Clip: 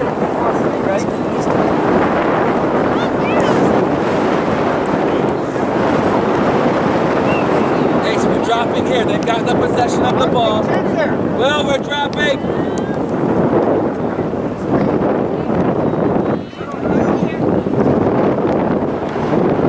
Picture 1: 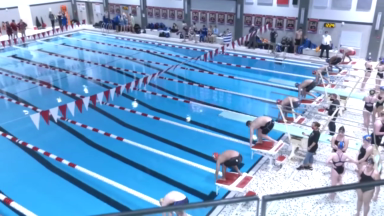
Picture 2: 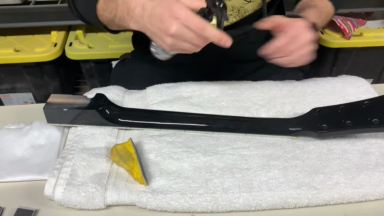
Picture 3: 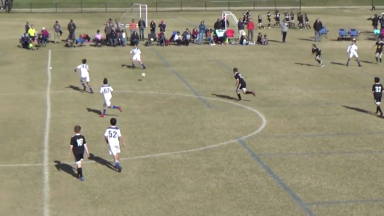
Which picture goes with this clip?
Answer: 3